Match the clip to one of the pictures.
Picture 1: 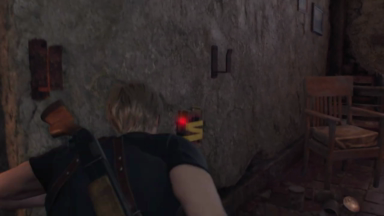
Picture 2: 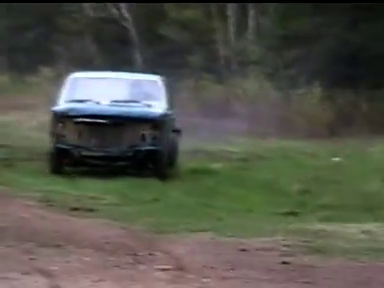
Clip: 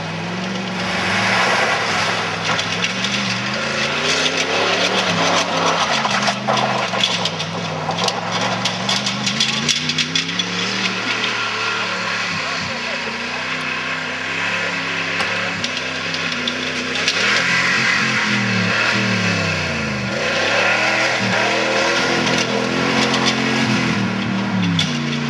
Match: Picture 2